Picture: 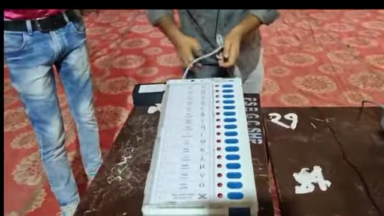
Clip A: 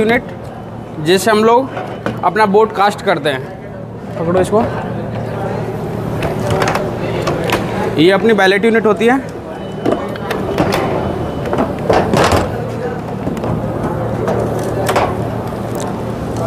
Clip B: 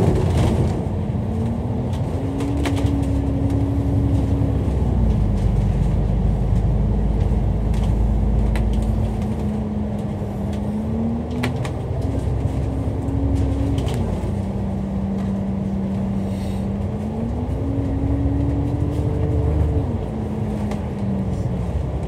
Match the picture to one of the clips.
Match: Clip A